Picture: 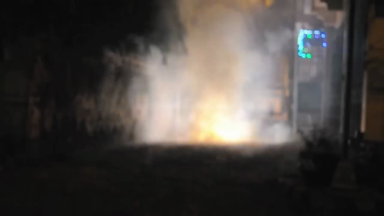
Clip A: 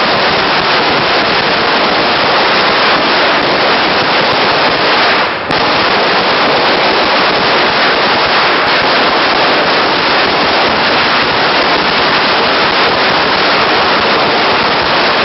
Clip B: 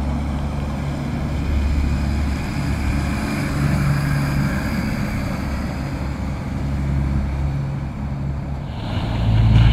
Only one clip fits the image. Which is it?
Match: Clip A